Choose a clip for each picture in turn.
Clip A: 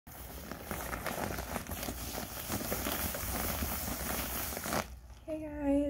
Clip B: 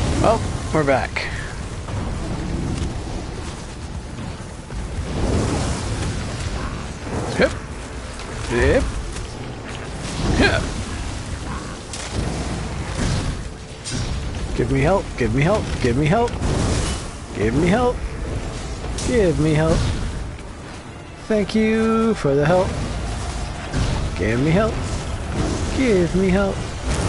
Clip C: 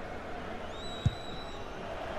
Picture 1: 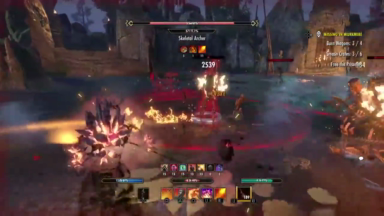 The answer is B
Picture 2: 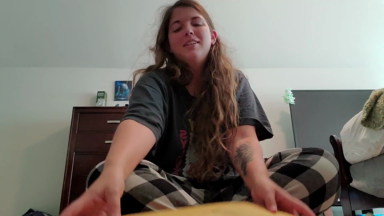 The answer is A